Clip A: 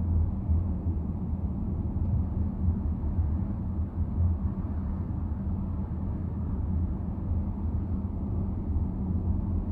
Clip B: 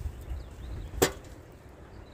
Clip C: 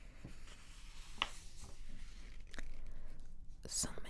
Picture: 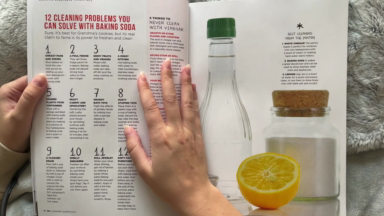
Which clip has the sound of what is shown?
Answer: C